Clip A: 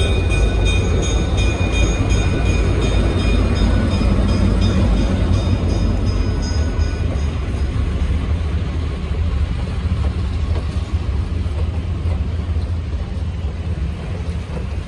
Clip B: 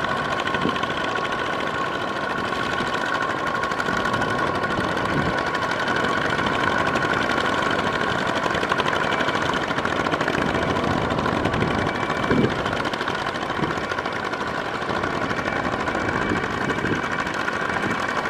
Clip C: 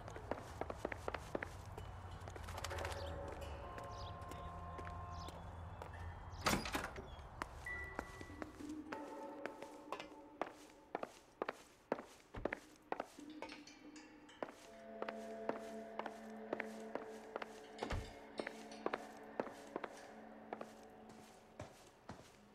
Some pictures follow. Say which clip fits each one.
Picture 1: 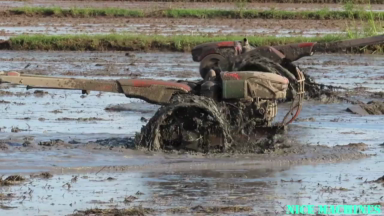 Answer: B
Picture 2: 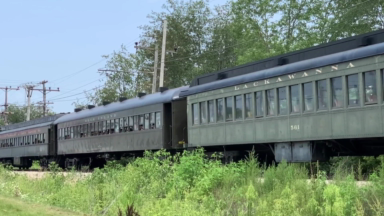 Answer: A